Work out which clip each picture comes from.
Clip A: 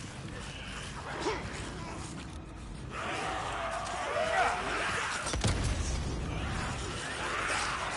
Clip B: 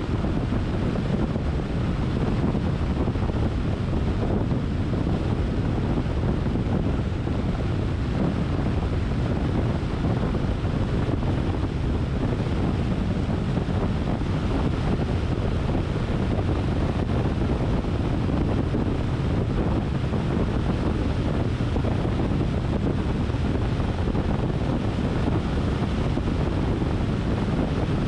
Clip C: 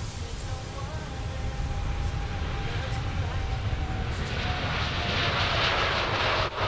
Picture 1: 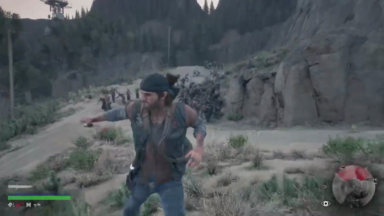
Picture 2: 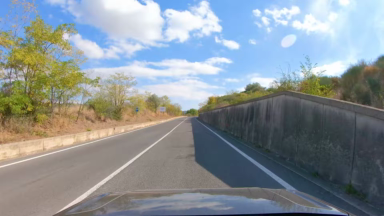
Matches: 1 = A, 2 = B